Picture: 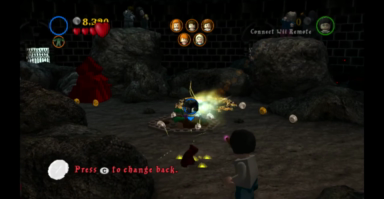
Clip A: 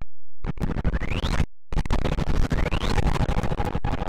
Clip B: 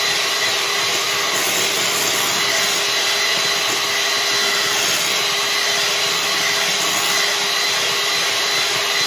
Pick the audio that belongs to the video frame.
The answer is A